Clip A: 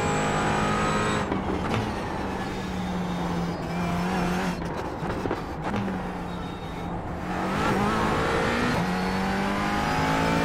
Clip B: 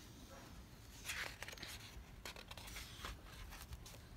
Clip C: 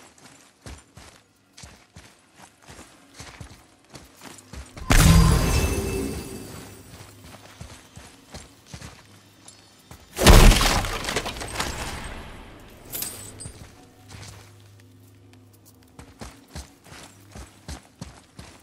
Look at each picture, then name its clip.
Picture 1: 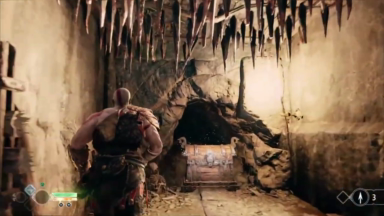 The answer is C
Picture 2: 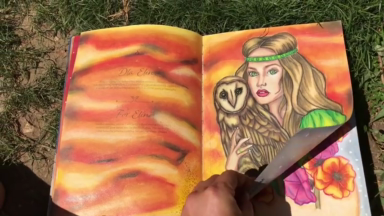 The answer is B